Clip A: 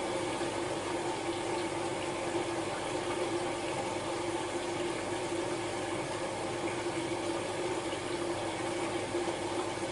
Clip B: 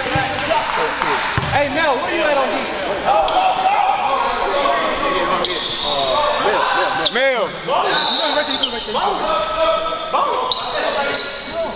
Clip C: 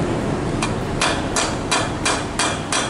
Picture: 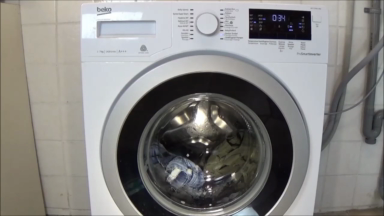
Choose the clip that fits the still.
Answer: A